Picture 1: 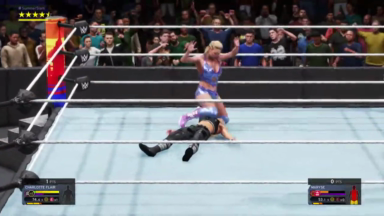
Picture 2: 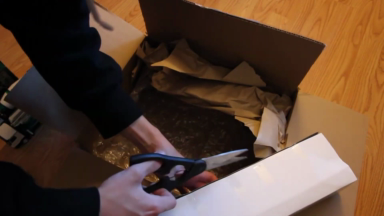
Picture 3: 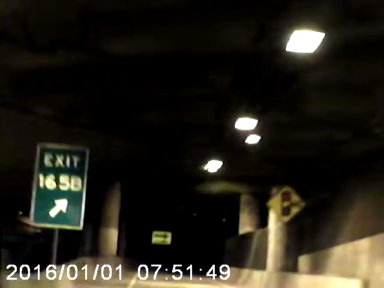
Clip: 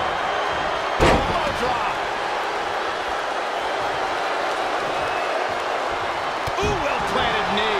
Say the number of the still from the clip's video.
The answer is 1